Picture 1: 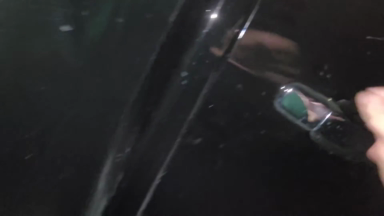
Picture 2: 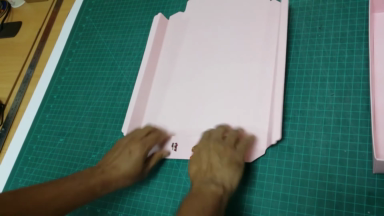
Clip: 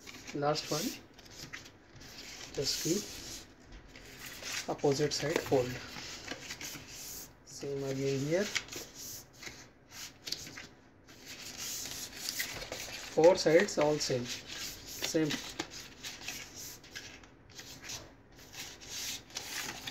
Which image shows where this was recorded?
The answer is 2